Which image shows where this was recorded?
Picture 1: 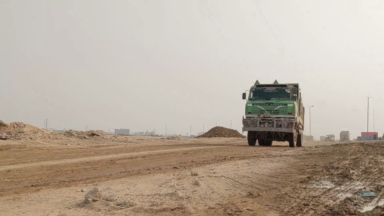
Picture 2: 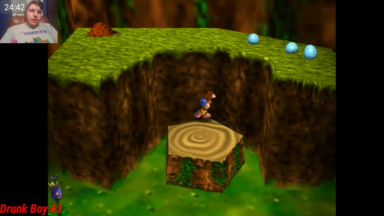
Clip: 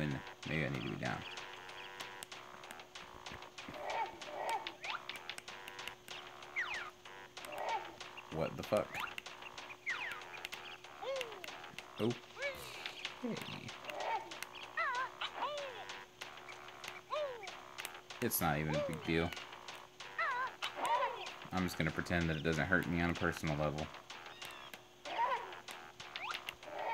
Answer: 2